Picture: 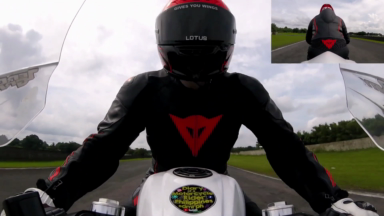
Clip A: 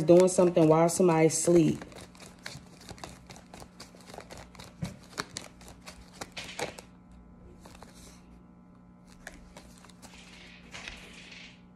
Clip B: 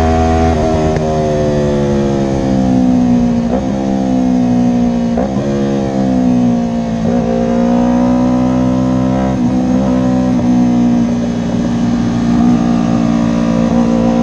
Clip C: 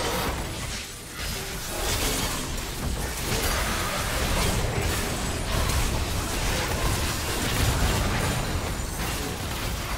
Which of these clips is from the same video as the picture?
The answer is B